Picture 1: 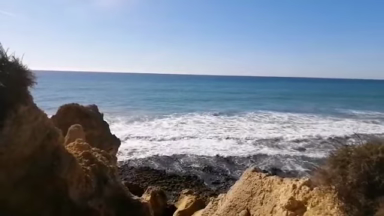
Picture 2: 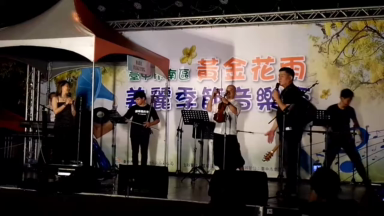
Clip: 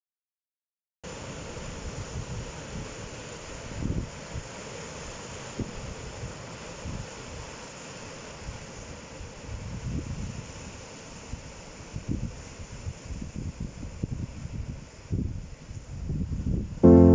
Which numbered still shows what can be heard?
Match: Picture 1